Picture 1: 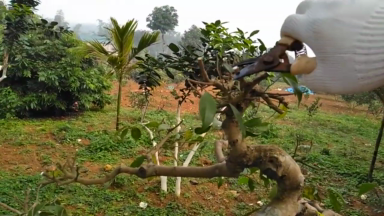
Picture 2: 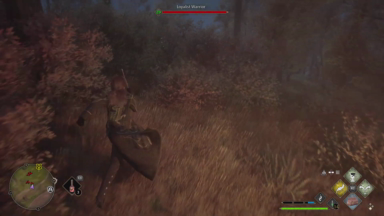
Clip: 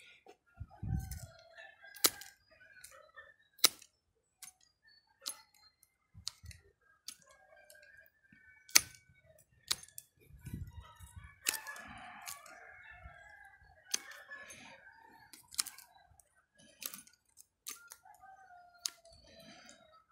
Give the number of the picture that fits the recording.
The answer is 1